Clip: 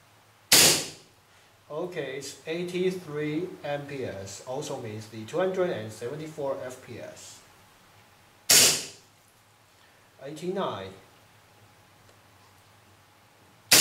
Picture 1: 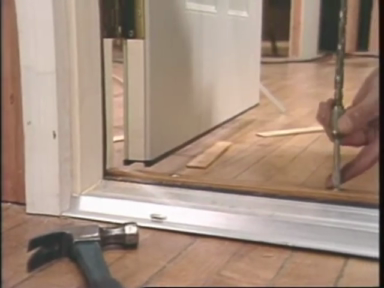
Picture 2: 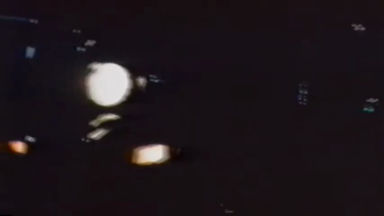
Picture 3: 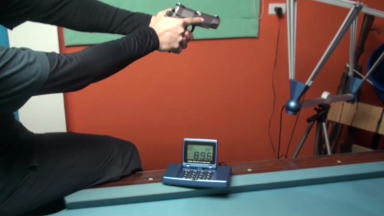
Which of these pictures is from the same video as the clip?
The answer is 3